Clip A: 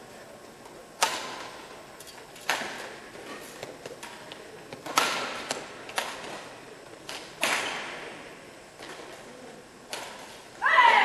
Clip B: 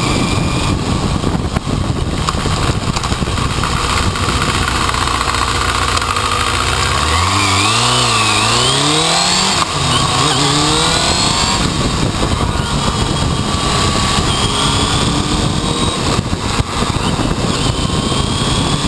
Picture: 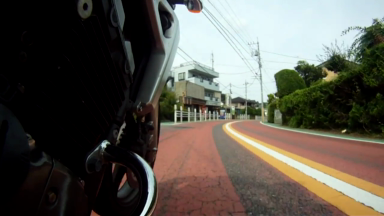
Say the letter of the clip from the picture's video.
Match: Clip B